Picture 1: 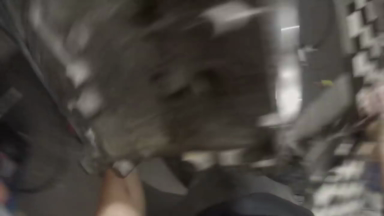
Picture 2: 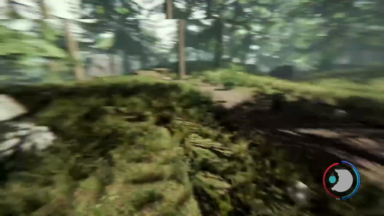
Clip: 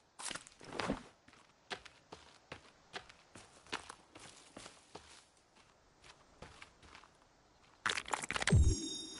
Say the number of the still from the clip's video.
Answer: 2